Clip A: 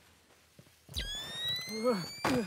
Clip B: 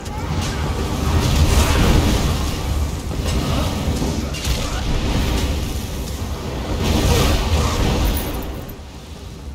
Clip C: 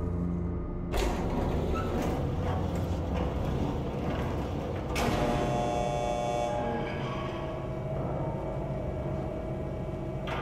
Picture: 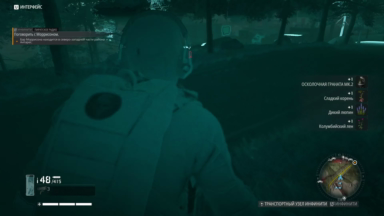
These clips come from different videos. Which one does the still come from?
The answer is A